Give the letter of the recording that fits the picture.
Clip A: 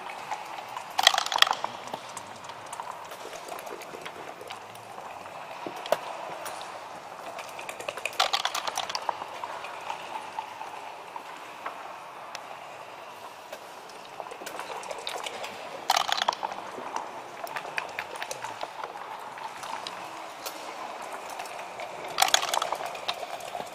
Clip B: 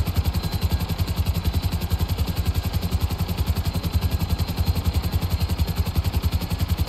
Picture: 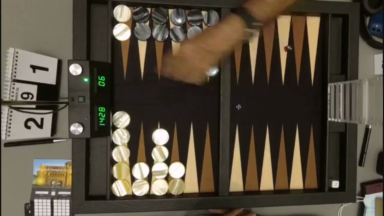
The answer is A